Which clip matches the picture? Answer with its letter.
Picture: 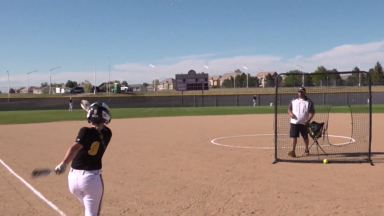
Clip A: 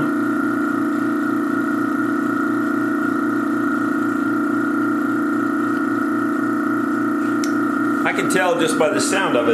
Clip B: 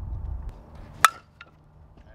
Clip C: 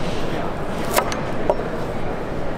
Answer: B